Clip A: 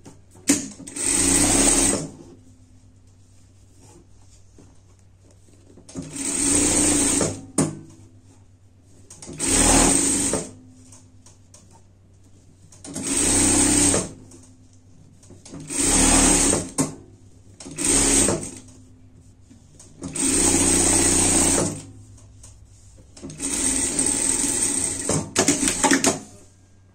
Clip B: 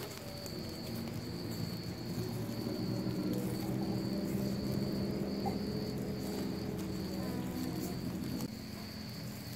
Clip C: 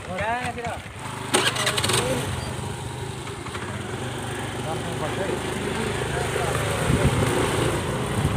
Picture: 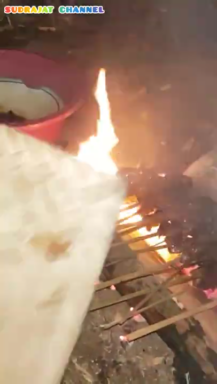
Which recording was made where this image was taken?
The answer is B